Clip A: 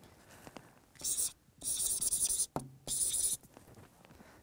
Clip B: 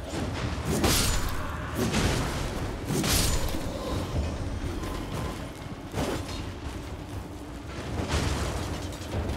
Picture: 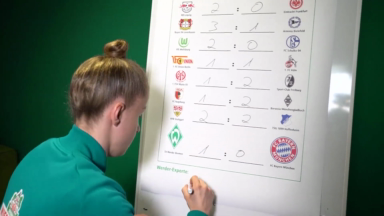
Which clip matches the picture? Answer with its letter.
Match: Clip A